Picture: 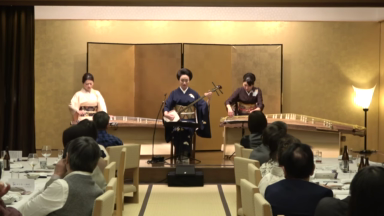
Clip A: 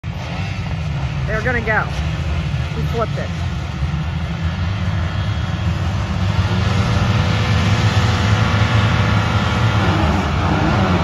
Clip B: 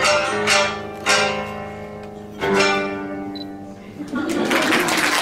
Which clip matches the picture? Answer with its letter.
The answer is B